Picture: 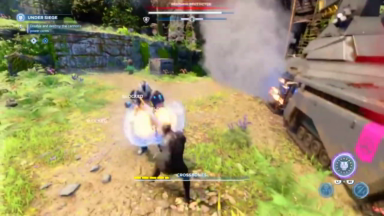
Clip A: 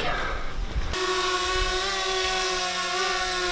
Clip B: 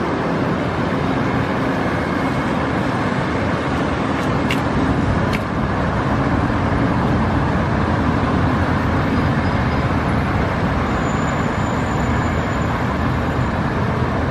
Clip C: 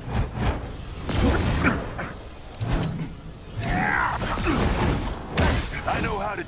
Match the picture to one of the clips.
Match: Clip C